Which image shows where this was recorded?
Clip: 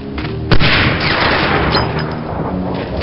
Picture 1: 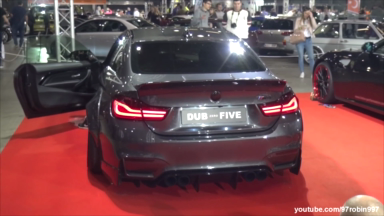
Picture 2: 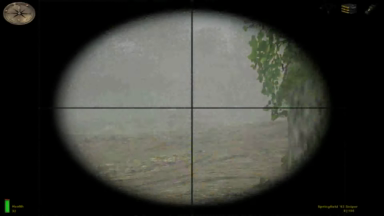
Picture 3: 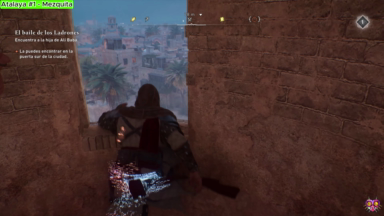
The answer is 2